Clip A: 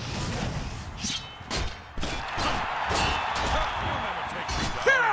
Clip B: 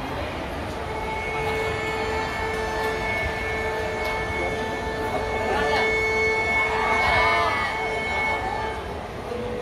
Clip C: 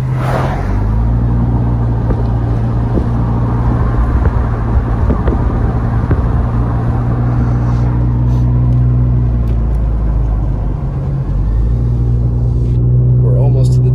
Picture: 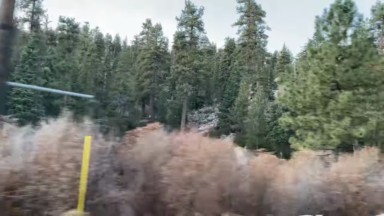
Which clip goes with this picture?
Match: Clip C